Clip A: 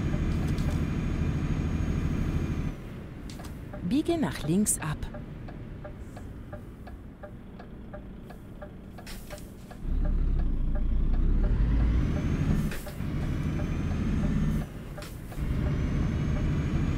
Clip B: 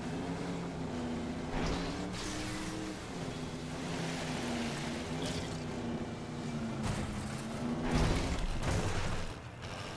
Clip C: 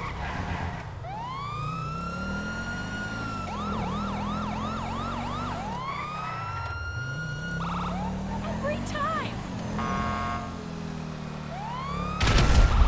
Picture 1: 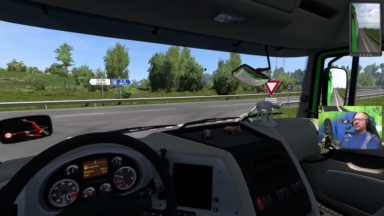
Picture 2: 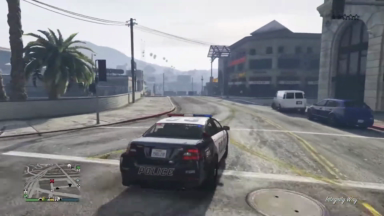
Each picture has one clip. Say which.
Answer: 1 A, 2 C